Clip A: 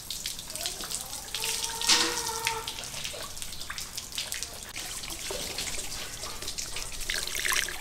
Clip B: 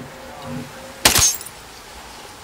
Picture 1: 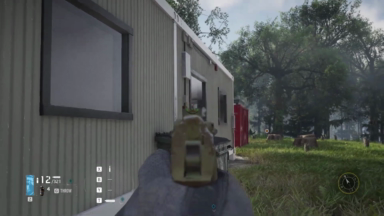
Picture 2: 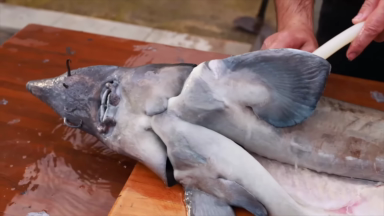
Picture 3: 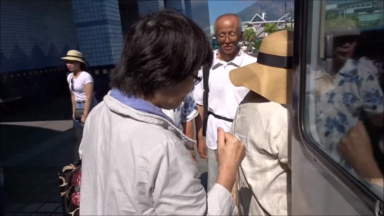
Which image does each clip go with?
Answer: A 2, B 1